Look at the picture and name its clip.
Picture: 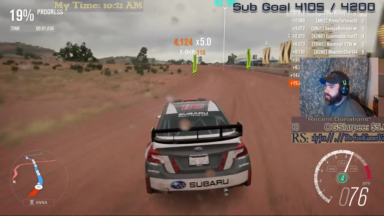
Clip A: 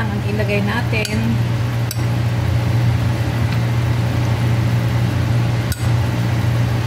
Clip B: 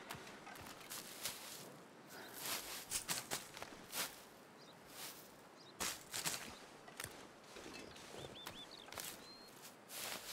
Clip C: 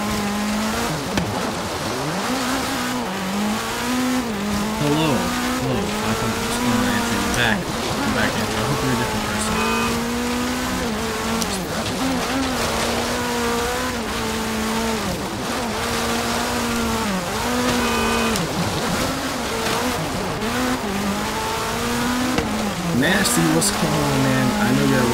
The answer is C